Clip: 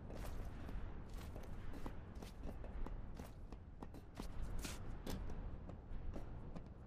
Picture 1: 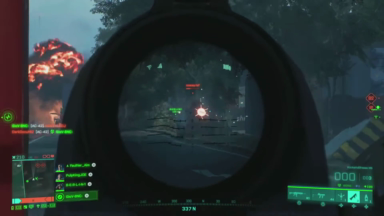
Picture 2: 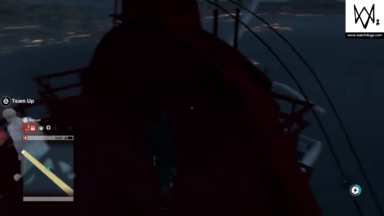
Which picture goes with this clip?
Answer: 2